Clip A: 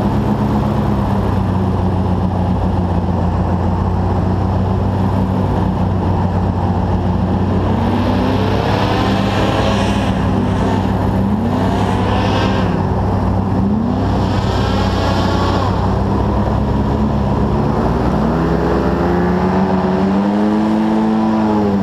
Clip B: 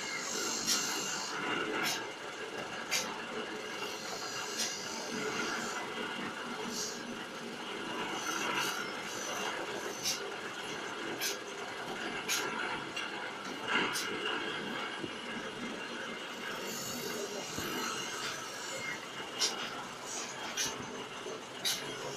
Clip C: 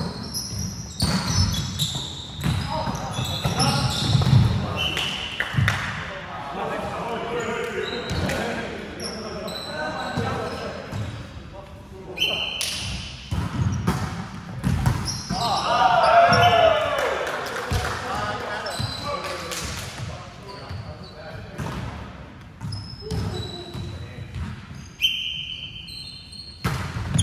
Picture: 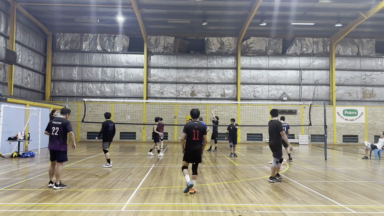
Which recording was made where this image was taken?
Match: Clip C